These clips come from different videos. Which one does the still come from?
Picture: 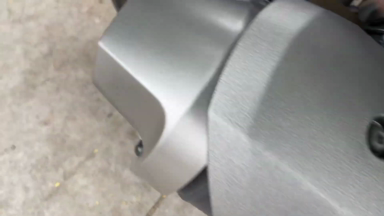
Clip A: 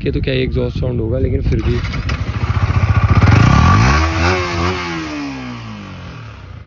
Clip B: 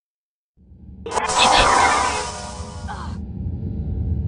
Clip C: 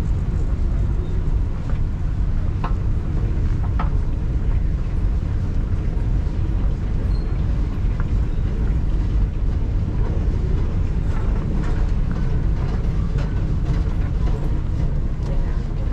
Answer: A